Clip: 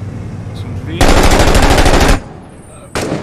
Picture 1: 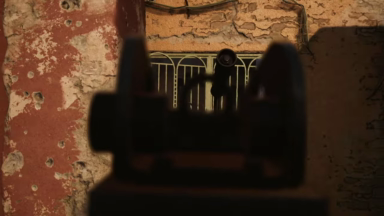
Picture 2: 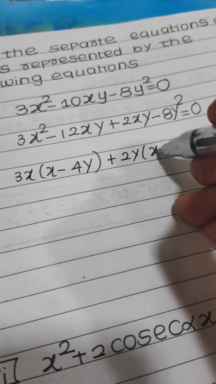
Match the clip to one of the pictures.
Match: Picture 1